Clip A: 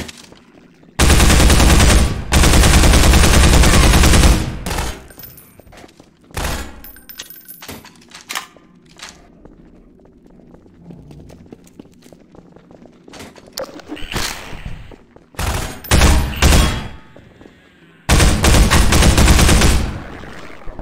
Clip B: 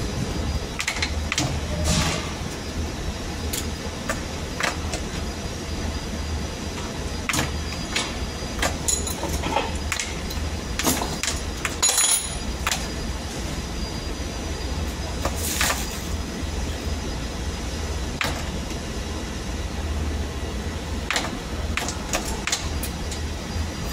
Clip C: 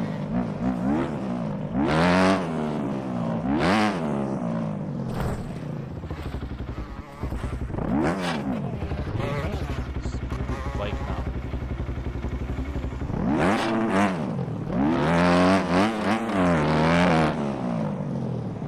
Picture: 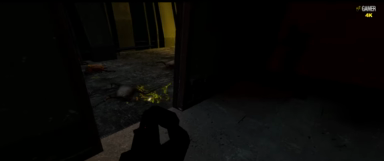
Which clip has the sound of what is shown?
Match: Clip A